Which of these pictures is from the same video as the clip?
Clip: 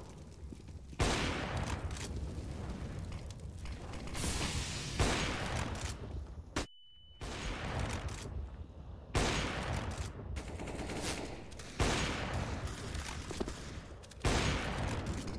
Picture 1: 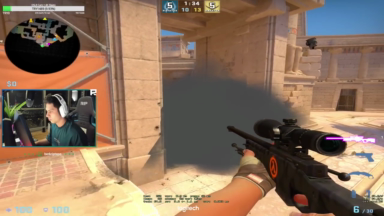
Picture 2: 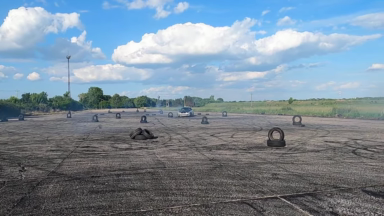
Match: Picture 1